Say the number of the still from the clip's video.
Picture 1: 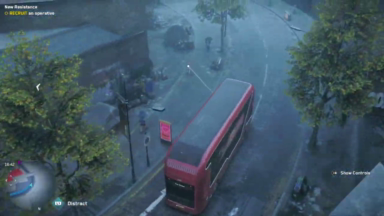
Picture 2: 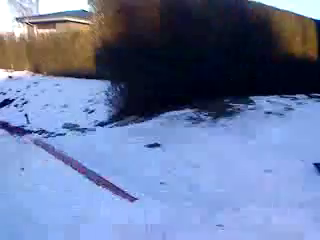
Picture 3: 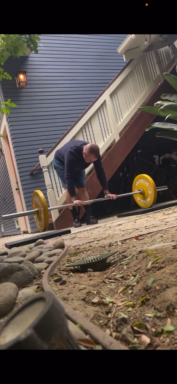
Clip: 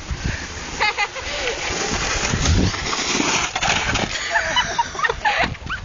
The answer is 2